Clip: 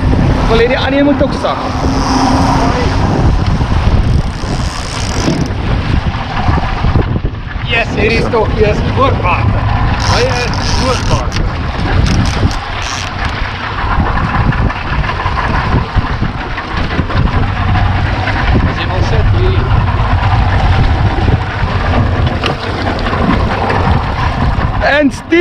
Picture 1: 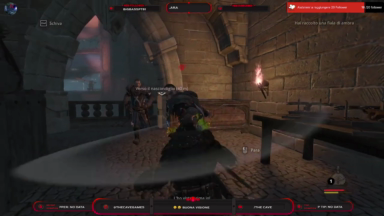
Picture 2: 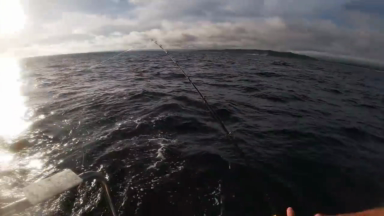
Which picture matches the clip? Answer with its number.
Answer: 2